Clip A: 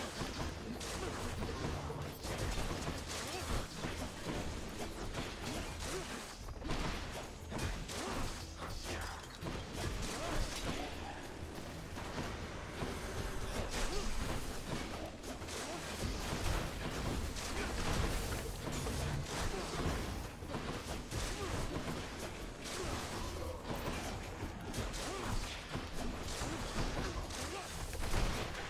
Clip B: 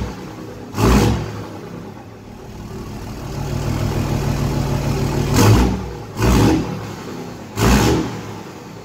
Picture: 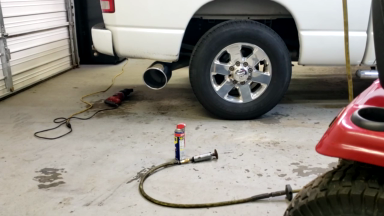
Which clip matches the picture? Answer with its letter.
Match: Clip B